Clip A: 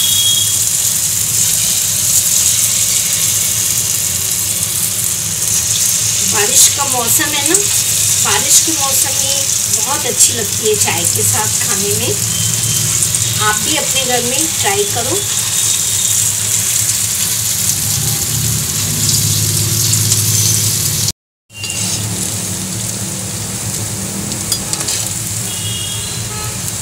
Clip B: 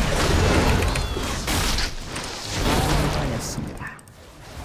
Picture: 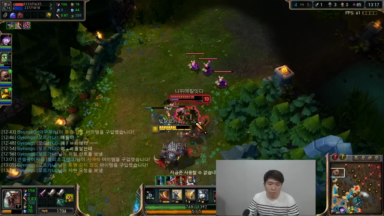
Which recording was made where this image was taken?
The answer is B